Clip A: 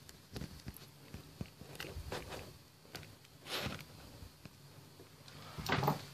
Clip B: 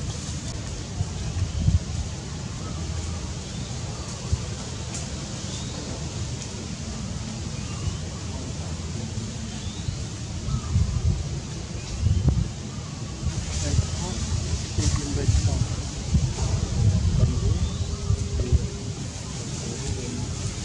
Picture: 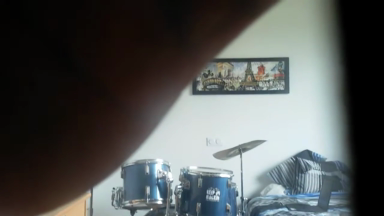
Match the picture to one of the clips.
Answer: A